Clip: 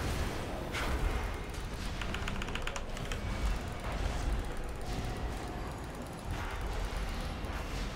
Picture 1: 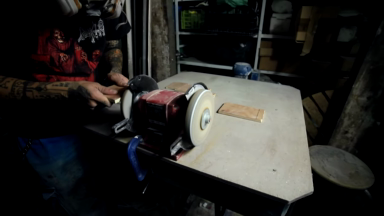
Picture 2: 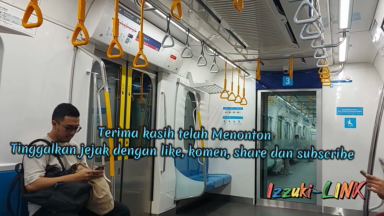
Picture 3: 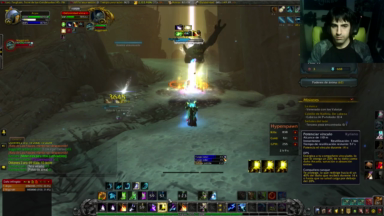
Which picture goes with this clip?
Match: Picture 3